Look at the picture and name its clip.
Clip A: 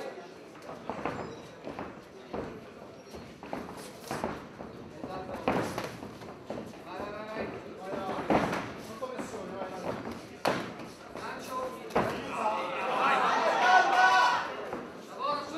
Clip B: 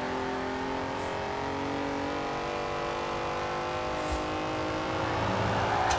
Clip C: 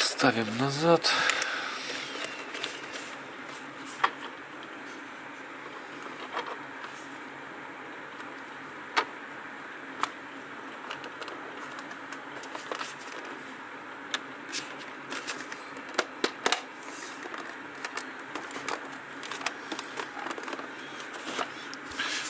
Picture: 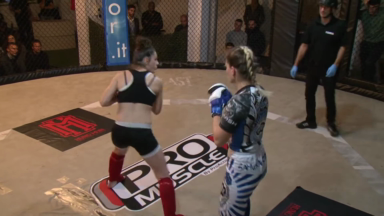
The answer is A